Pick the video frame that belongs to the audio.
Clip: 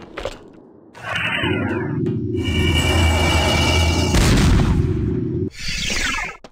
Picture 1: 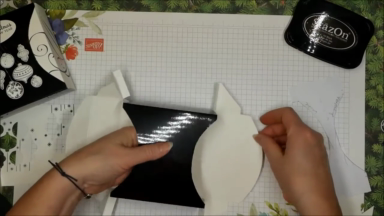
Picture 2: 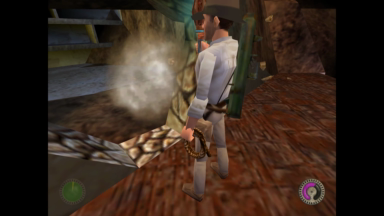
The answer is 2